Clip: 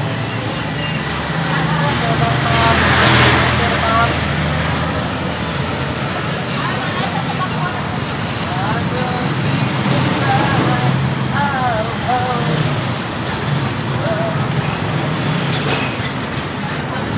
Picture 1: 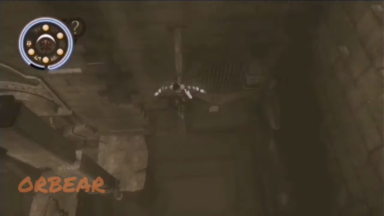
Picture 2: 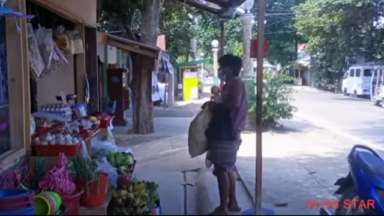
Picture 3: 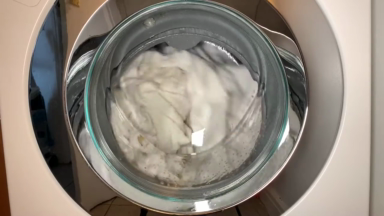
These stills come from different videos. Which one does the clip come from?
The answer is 2